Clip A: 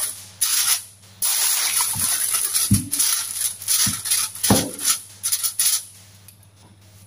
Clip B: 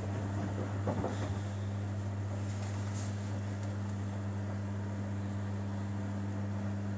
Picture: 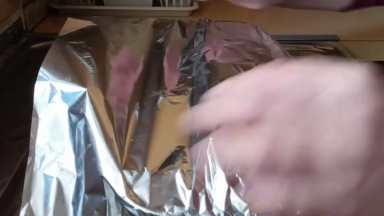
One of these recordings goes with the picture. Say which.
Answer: A